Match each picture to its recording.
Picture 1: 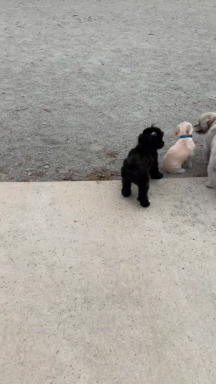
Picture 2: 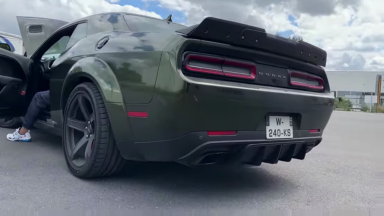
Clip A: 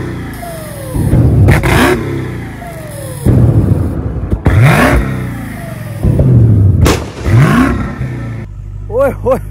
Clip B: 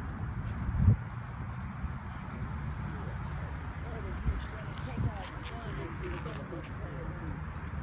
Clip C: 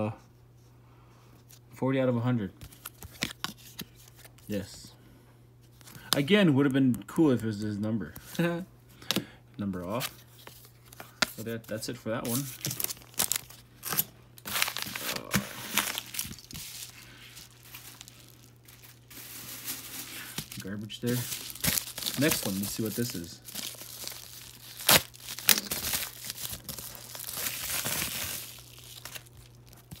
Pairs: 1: B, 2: A